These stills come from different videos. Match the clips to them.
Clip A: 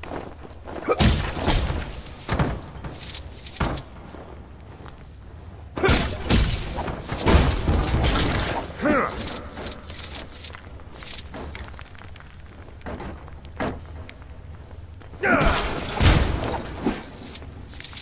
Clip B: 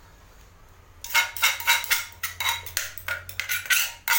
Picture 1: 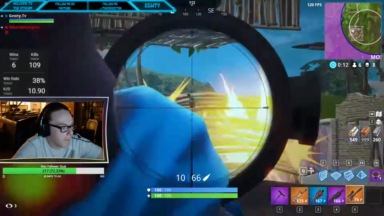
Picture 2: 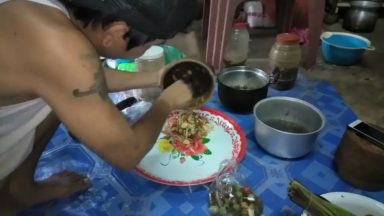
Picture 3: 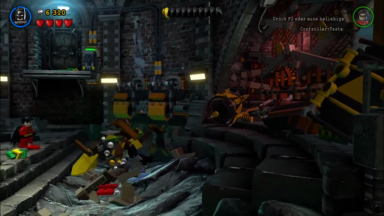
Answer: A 3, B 2